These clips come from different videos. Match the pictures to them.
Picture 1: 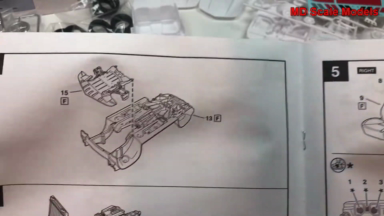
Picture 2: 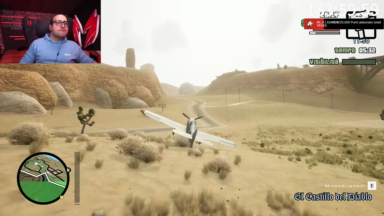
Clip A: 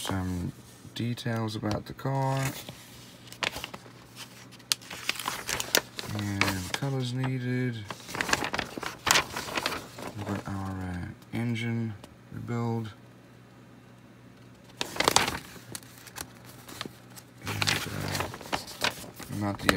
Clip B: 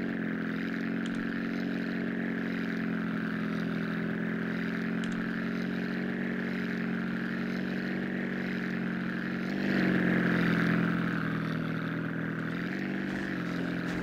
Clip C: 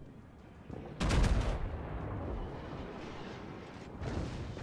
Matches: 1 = A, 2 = B